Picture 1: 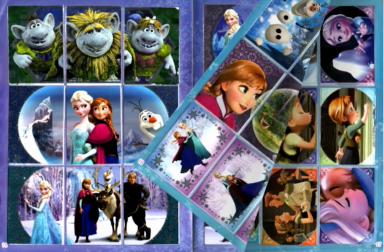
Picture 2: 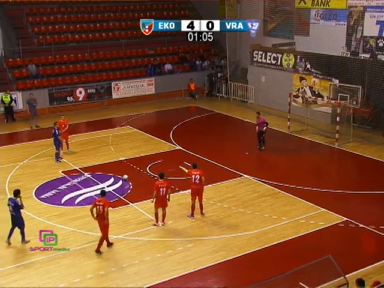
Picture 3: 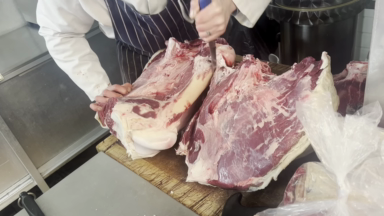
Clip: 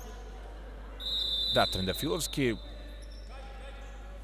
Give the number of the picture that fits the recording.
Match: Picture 2